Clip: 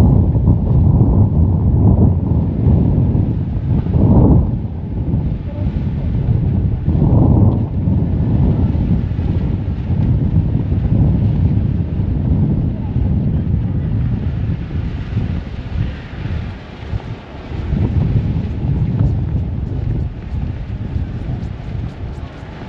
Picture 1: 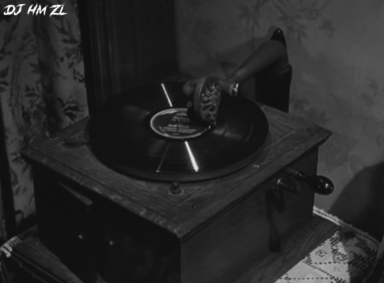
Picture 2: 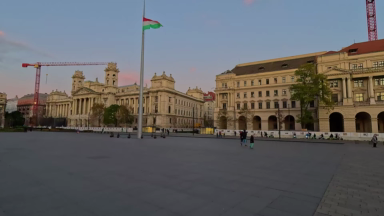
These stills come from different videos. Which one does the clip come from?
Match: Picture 2